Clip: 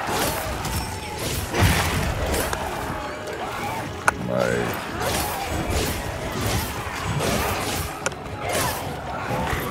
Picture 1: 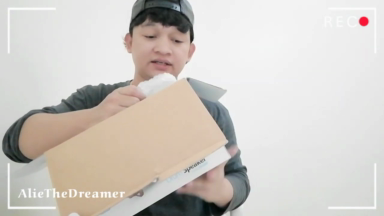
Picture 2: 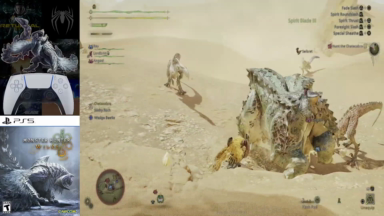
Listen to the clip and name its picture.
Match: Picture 2